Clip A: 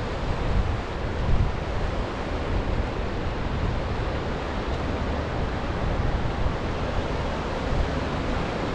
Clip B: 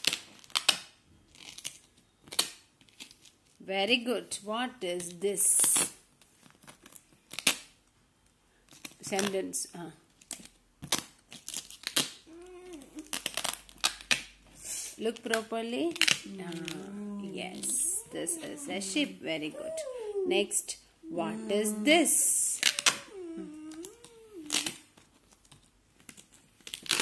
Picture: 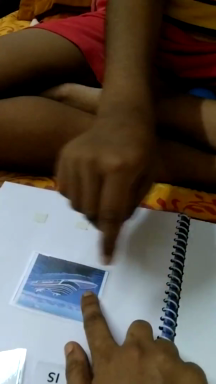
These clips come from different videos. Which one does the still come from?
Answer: B